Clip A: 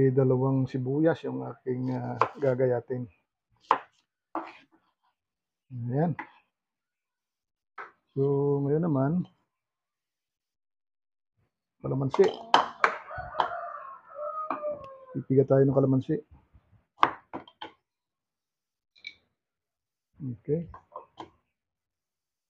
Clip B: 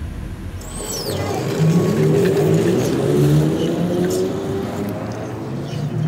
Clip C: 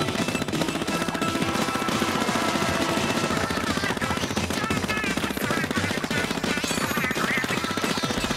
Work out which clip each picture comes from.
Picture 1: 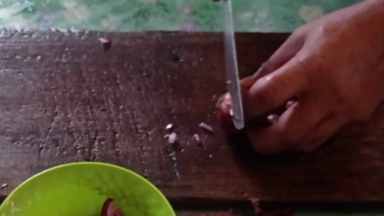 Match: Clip A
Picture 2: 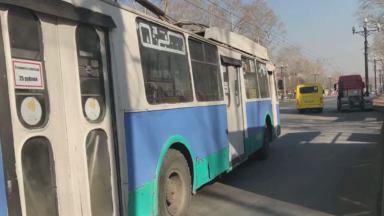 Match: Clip B